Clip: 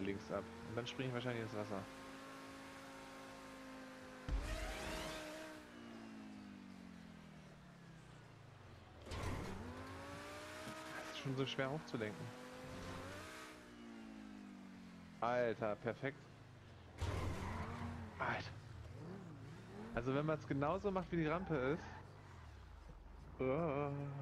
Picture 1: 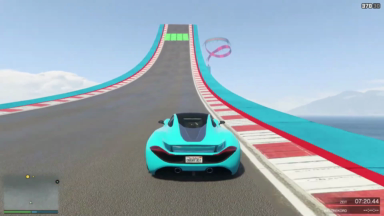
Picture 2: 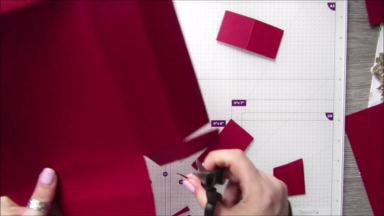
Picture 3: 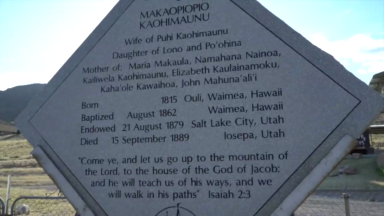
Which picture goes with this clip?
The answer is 1